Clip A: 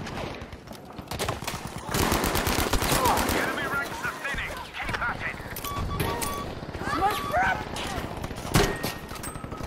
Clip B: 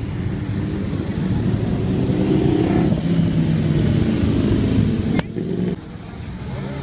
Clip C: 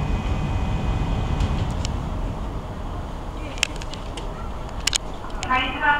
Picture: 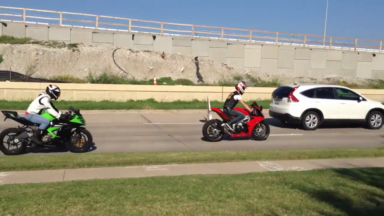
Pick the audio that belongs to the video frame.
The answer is B